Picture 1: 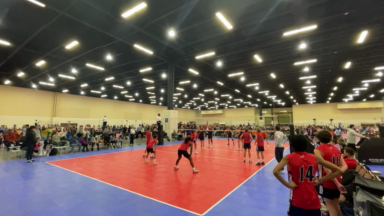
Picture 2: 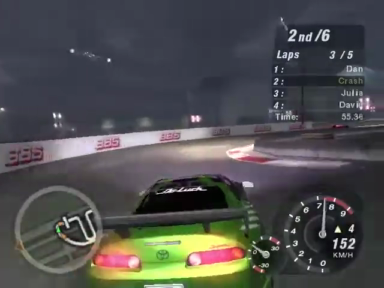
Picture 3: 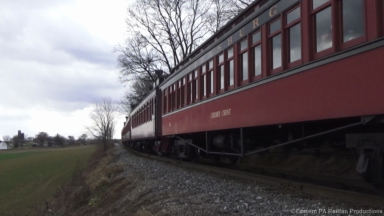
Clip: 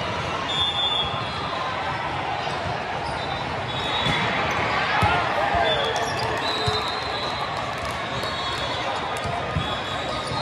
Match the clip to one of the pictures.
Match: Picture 1